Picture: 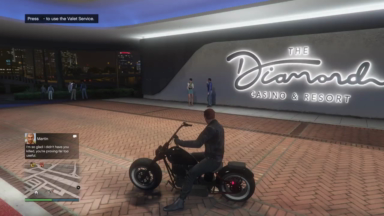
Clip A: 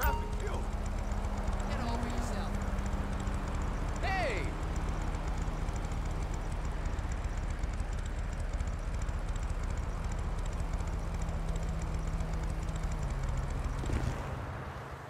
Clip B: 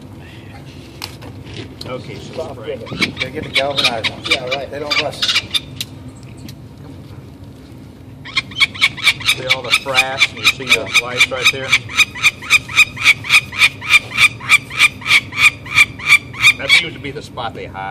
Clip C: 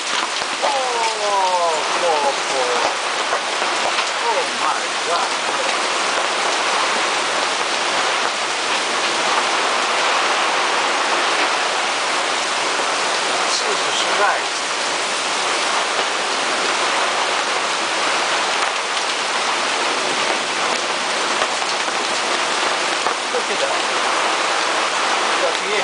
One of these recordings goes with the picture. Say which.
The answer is A